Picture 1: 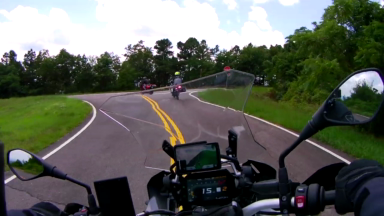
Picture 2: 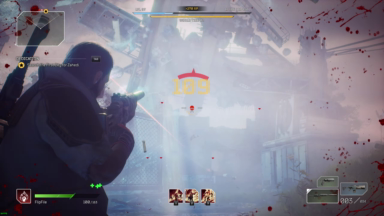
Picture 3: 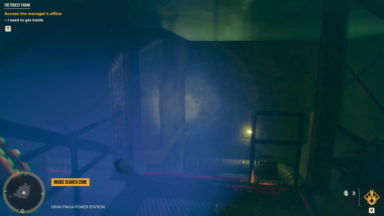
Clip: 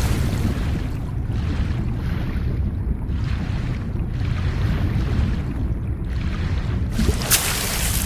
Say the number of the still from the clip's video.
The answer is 3